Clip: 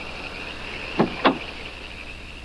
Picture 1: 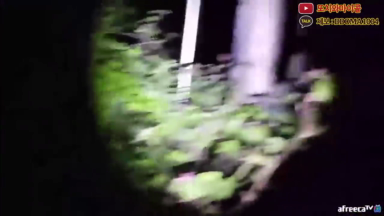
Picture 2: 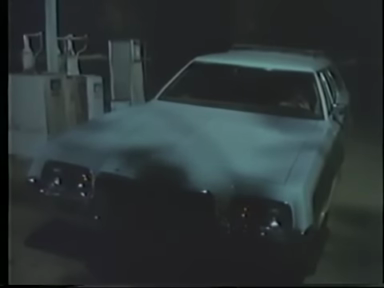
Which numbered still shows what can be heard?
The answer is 2